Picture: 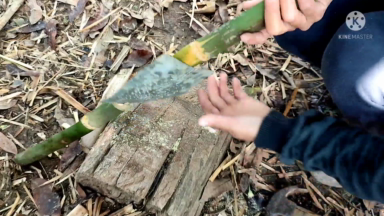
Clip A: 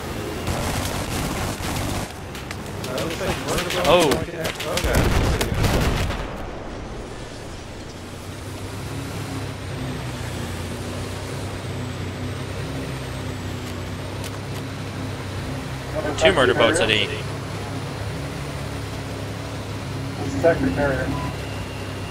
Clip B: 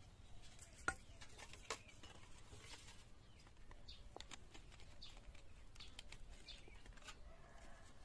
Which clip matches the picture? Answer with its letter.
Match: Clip B